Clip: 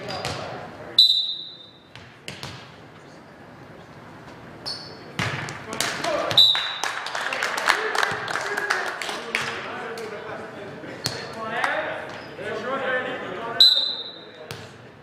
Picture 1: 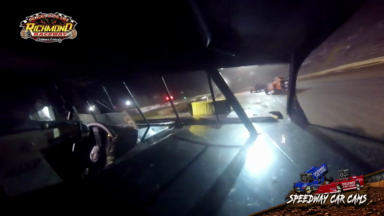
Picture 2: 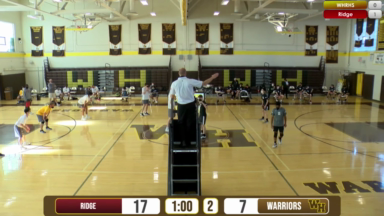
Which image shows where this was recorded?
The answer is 2